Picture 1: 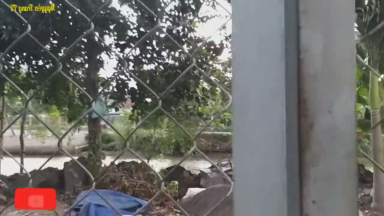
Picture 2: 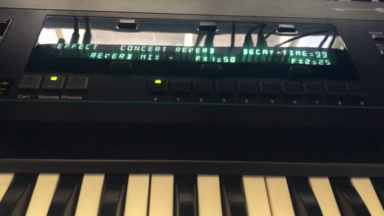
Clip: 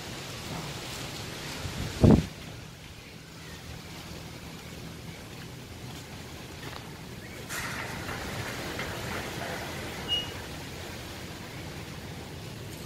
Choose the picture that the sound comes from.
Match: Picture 1